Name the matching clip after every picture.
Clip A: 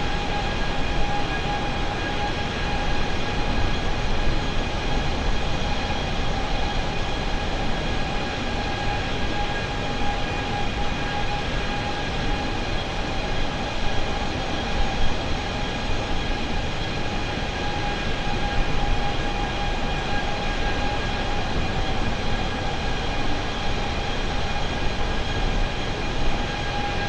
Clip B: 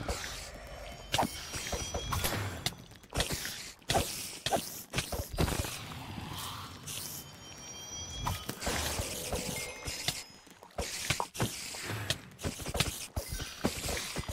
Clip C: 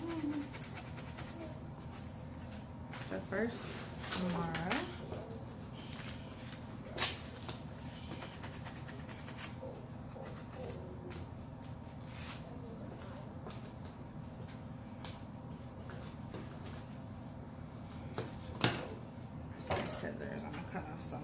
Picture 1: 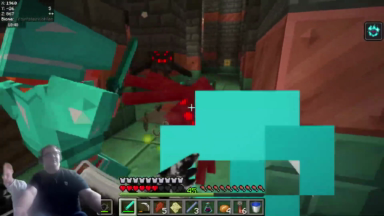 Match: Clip B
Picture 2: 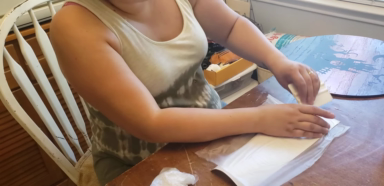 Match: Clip C